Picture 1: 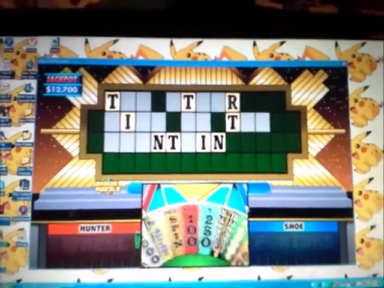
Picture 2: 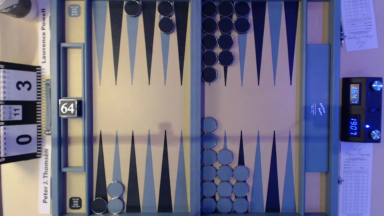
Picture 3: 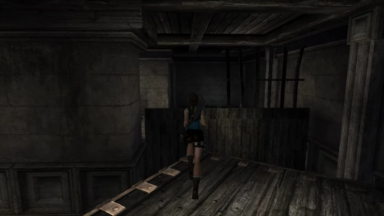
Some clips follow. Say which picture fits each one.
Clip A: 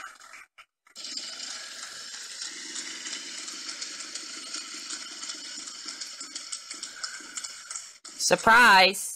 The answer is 1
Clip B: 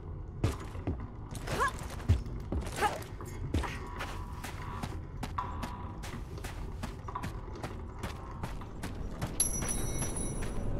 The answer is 3